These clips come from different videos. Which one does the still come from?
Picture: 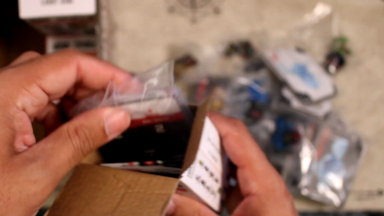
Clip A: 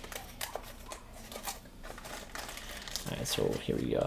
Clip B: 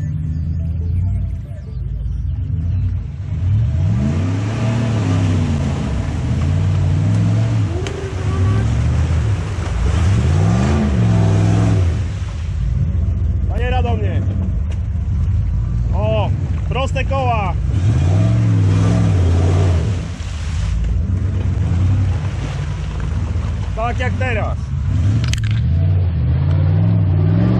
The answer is A